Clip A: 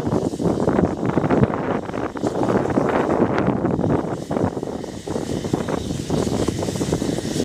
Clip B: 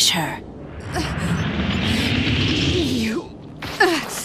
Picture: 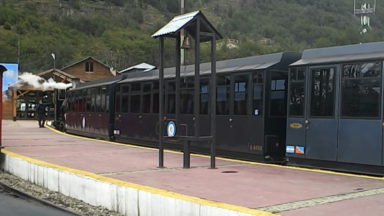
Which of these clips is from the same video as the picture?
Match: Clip A